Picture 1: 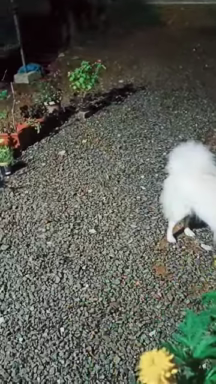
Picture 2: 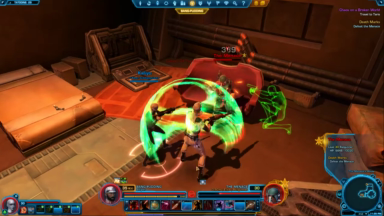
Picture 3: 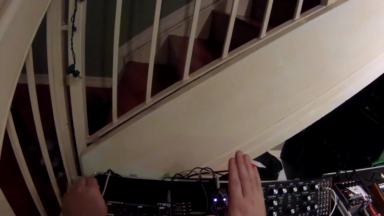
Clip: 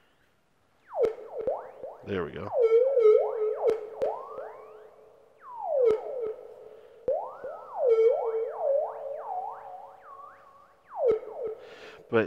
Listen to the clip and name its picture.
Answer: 3